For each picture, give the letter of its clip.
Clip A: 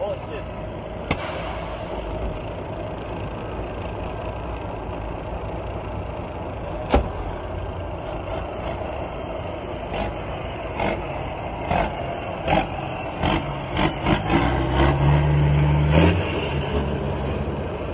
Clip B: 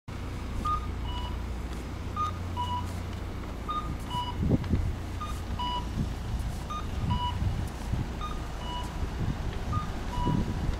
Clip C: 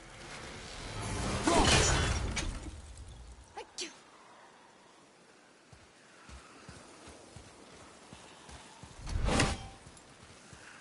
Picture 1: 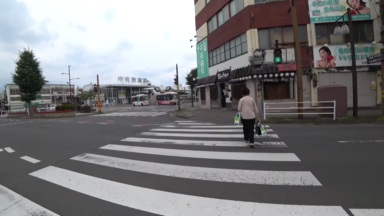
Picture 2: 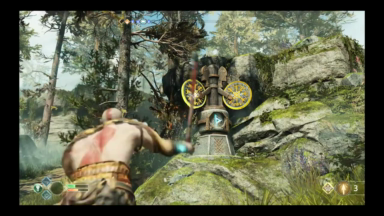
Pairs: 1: B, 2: C